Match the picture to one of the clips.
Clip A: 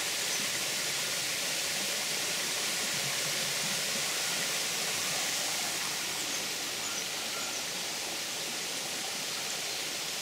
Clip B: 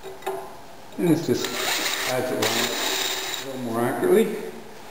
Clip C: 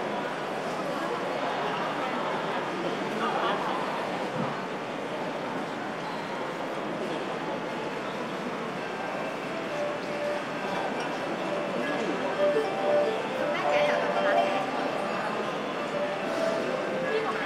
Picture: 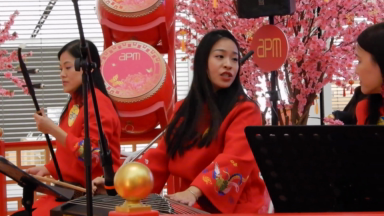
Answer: C